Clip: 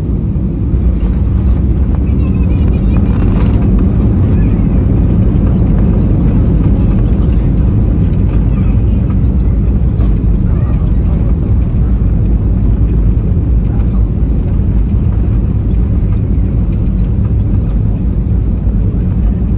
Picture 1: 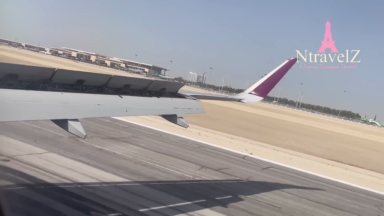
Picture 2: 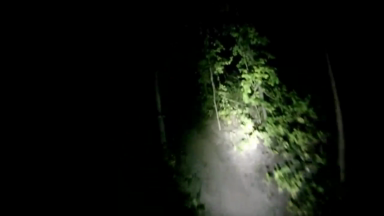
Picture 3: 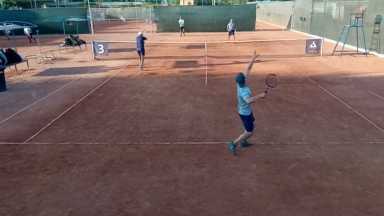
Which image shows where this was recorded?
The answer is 1